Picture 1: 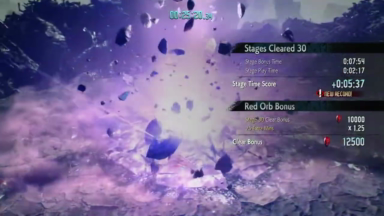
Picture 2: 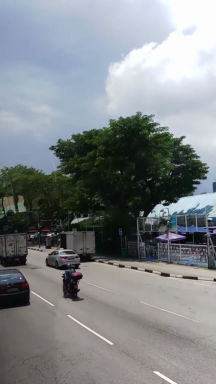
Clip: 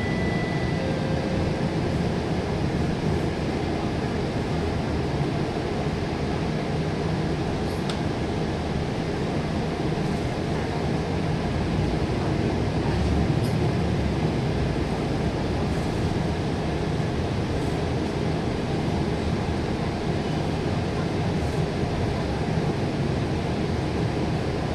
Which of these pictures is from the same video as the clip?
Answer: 2